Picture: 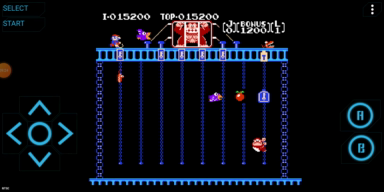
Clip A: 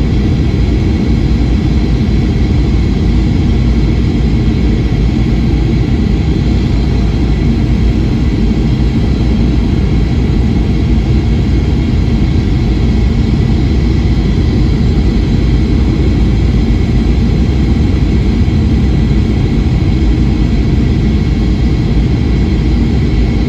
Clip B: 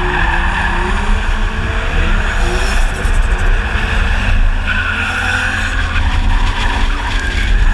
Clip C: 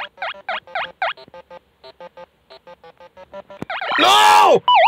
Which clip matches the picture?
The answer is C